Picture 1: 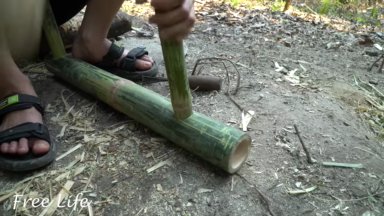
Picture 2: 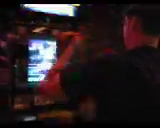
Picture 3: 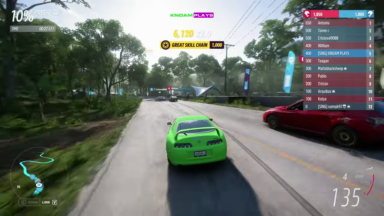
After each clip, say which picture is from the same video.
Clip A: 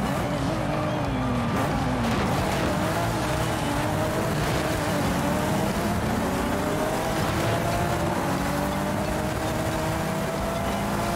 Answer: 3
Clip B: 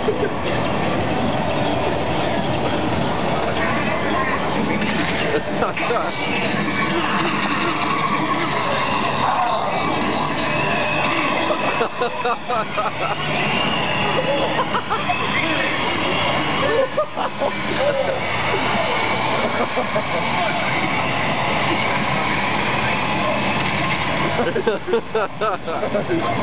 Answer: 2